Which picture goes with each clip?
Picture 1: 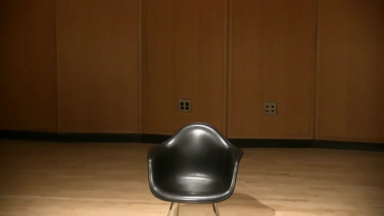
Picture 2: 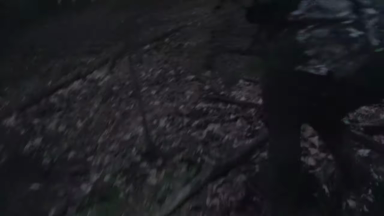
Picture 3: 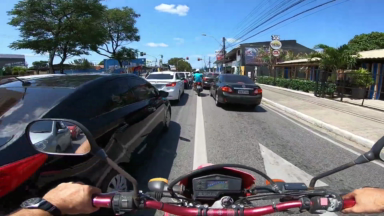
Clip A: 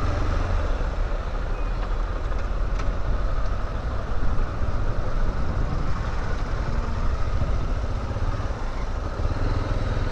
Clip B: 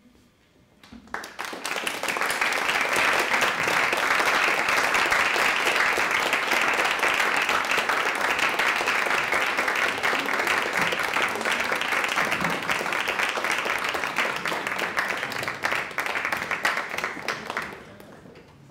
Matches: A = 3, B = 1